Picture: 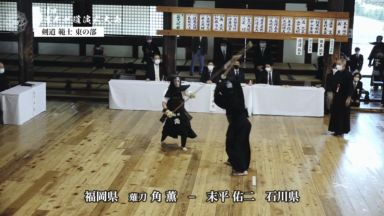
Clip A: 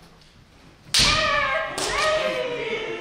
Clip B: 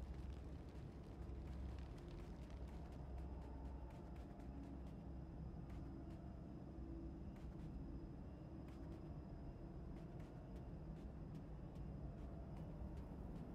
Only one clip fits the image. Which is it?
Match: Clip A